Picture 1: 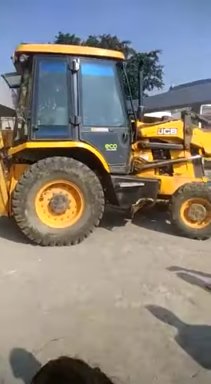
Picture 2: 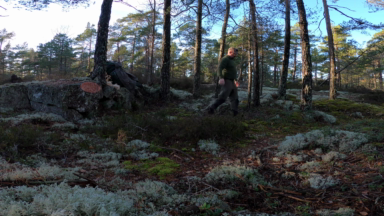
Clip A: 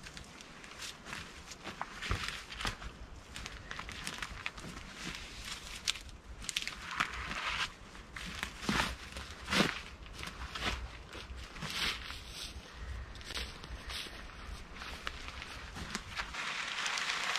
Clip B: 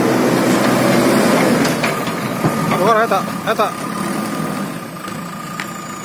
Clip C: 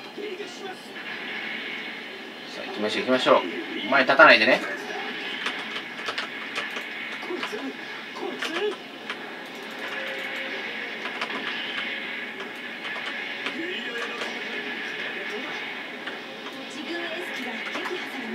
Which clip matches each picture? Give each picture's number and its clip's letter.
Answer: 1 B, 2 A